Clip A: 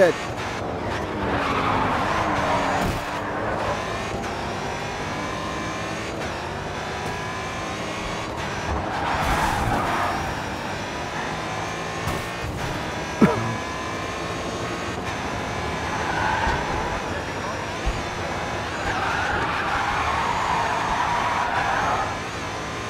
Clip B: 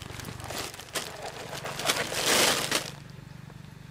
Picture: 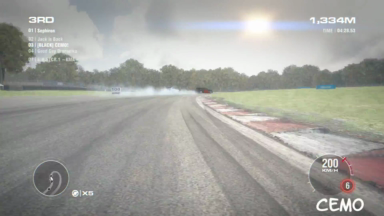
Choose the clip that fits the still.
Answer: A